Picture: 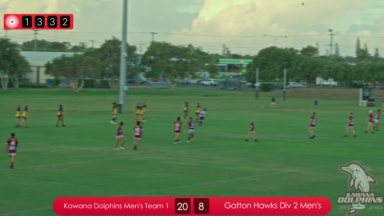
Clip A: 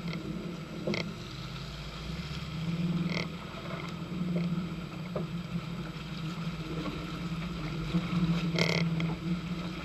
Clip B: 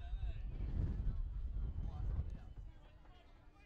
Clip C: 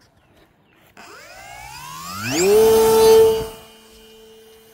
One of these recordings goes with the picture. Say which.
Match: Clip B